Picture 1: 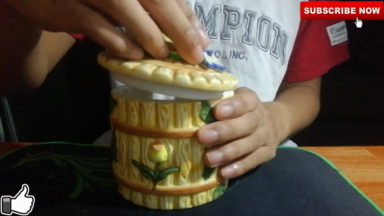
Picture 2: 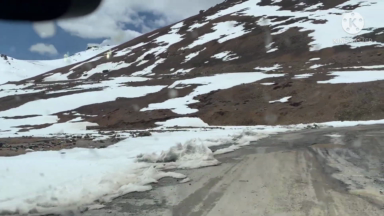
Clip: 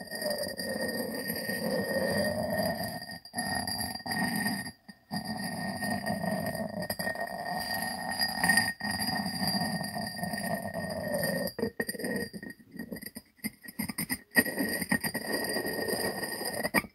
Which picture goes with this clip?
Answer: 1